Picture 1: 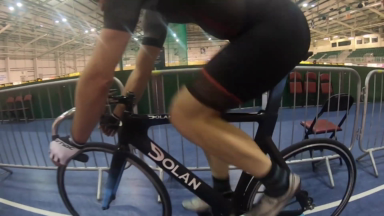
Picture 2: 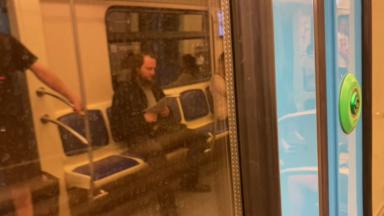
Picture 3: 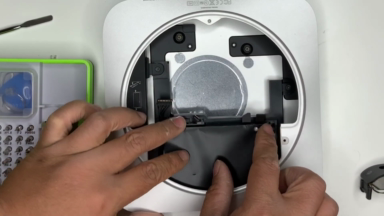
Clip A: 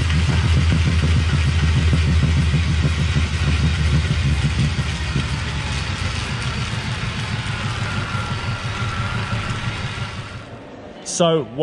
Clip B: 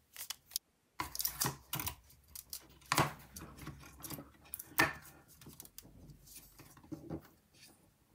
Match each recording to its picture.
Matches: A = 1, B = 3